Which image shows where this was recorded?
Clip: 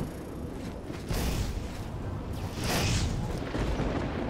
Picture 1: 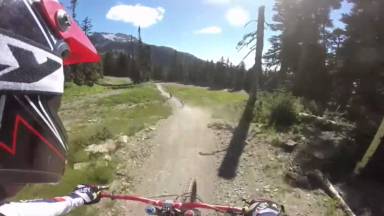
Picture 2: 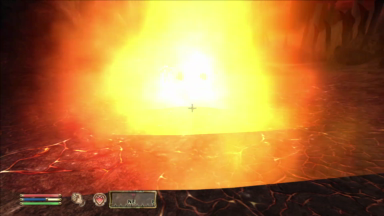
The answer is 2